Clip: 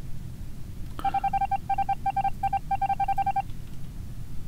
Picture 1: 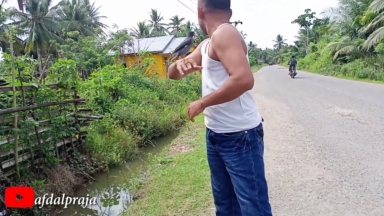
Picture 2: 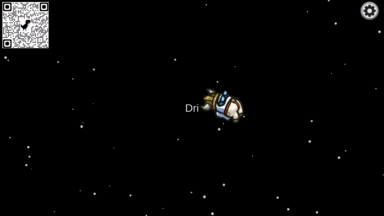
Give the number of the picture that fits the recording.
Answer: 2